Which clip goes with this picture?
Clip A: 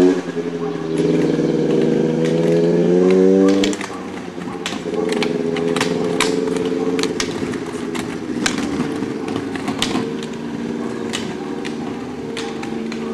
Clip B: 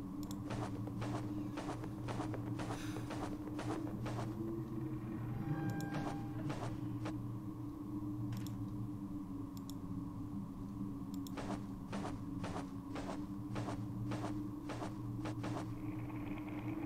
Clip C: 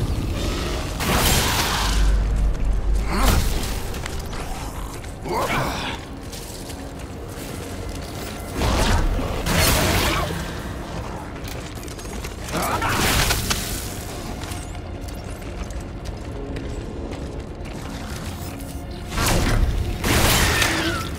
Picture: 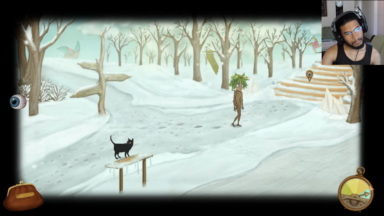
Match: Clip B